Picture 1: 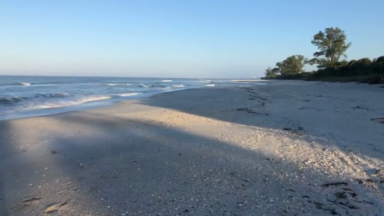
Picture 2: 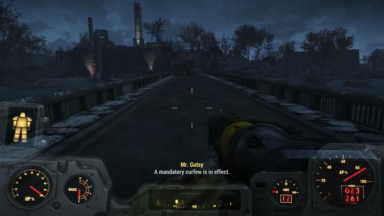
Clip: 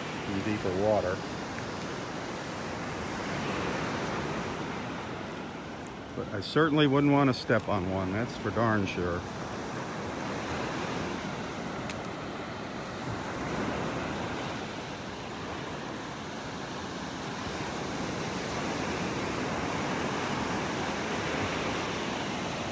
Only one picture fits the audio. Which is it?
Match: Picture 1